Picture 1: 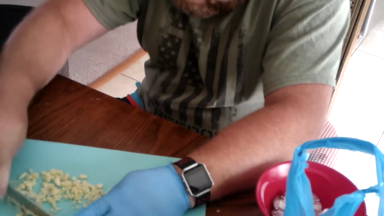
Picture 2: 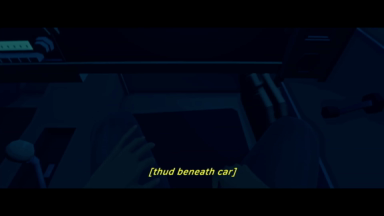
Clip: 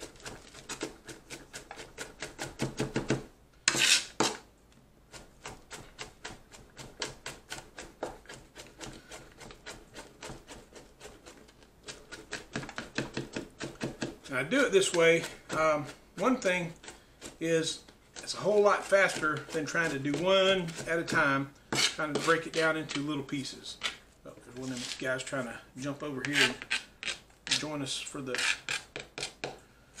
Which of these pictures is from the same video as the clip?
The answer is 1